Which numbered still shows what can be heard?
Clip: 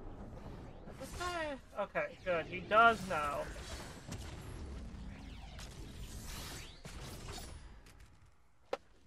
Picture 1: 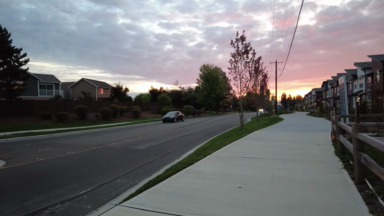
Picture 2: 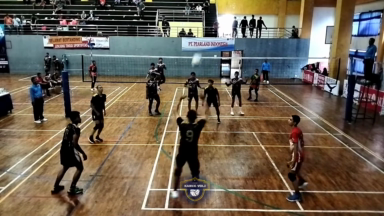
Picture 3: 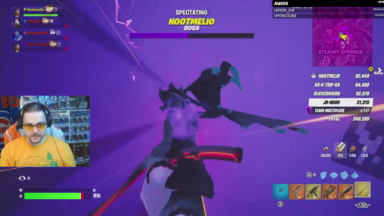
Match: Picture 3